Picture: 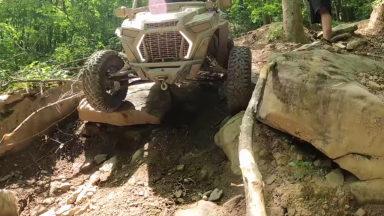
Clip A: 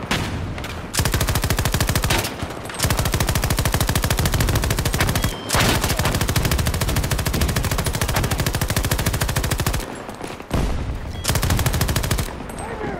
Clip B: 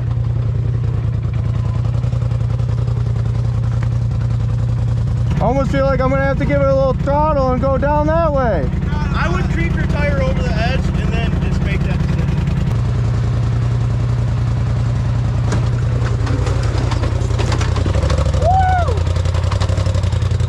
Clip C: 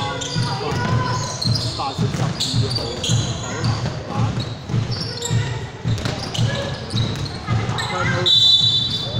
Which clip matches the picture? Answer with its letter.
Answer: B